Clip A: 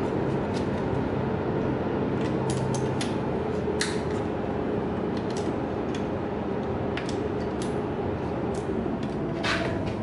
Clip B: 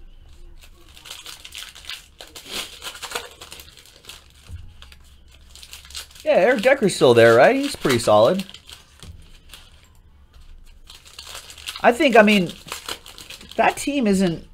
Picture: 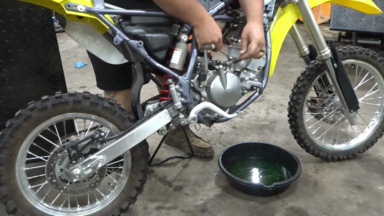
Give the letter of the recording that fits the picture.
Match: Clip A